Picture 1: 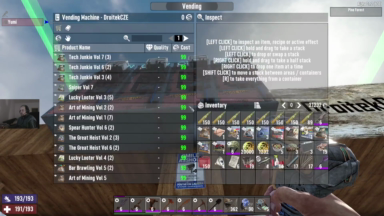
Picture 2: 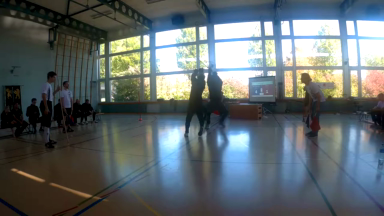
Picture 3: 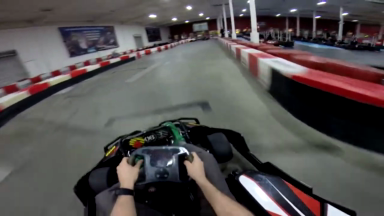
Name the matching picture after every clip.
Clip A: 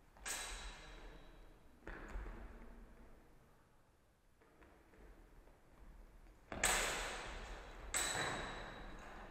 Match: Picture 2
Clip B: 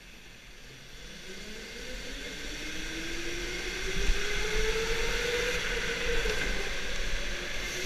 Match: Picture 3